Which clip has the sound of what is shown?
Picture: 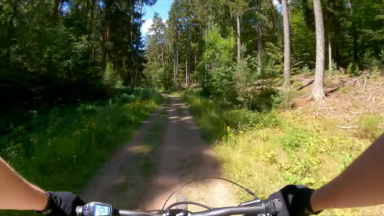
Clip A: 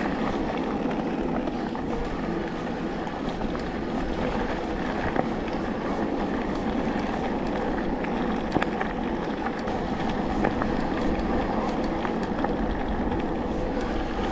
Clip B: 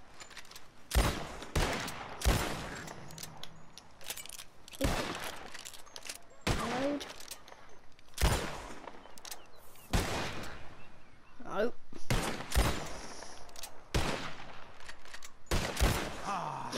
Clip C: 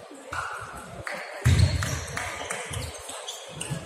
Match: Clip A